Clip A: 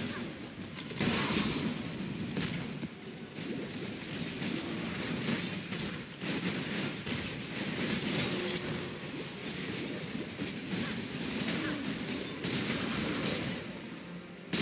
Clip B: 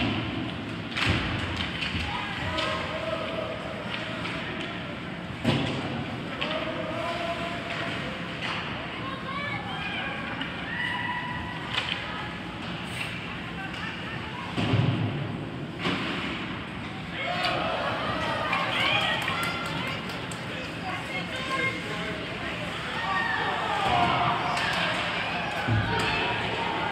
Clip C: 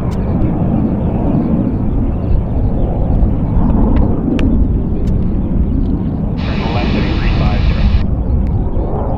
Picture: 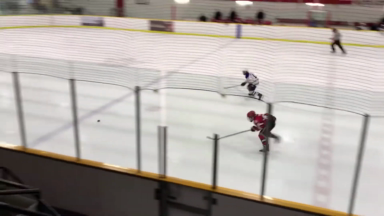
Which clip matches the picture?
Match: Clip B